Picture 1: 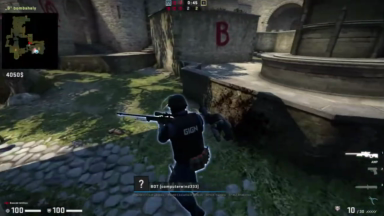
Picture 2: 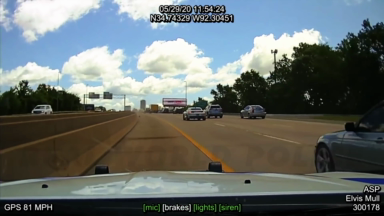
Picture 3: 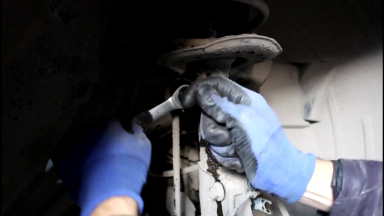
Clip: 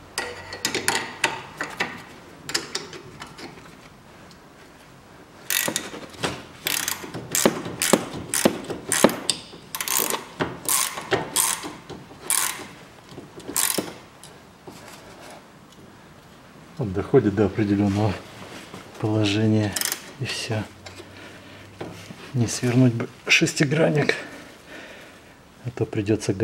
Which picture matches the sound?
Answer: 3